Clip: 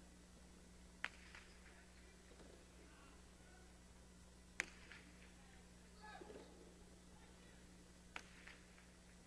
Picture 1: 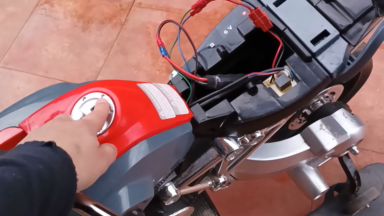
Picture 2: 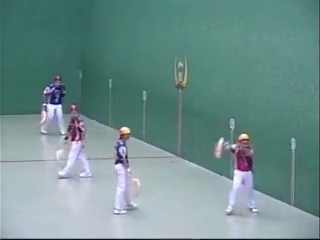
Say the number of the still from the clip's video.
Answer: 2